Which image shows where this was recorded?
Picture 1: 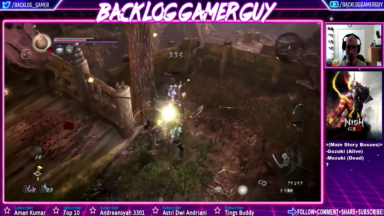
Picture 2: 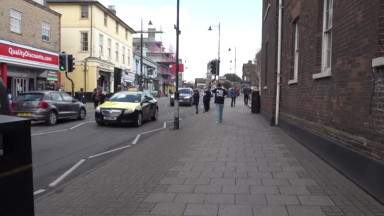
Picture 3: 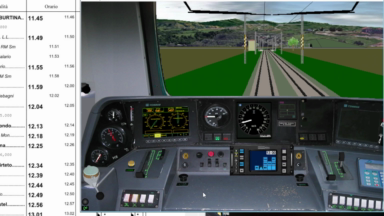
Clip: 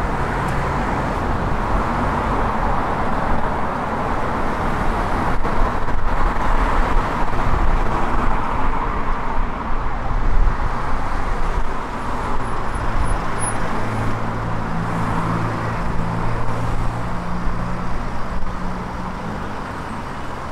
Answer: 2